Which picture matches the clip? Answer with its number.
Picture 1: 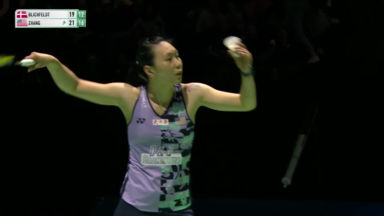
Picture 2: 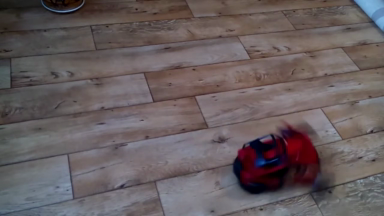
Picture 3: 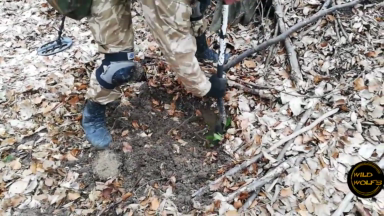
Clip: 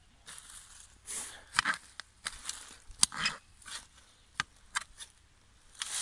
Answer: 3